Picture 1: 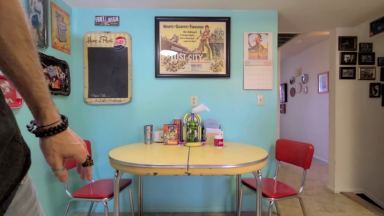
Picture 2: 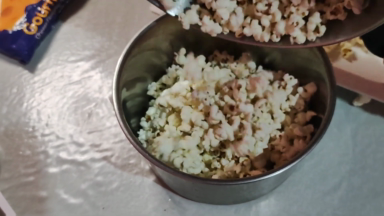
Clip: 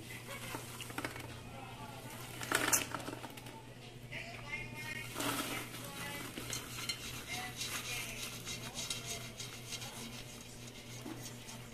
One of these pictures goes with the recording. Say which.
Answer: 2